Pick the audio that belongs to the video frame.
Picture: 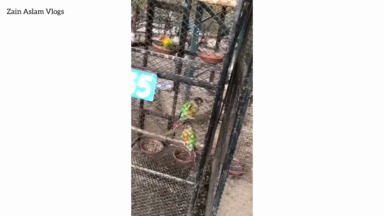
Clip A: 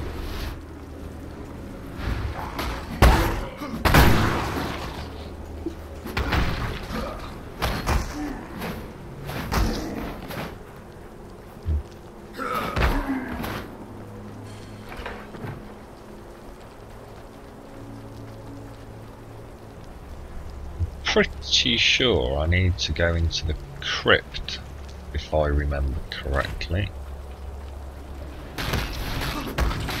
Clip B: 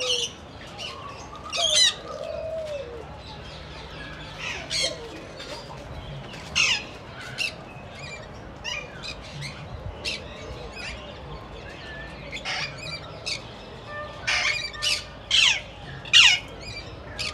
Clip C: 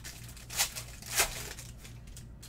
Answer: B